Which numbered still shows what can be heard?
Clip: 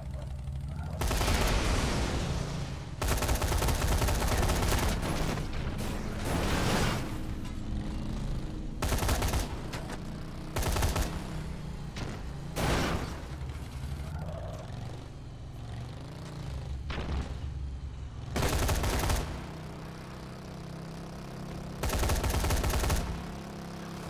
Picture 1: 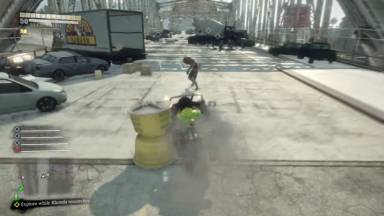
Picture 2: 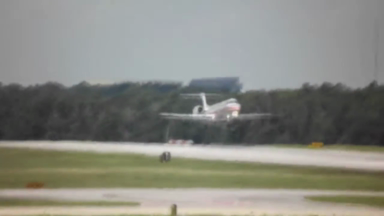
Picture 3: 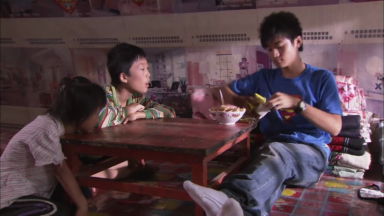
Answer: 1